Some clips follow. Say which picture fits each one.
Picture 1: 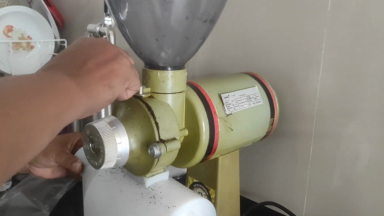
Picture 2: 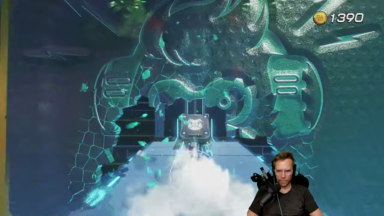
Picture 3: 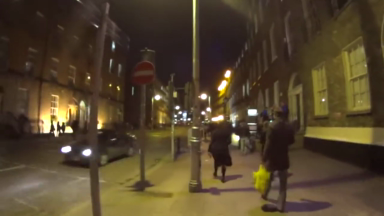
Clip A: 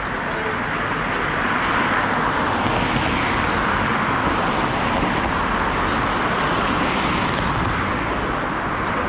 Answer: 3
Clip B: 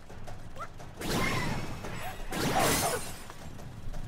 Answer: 2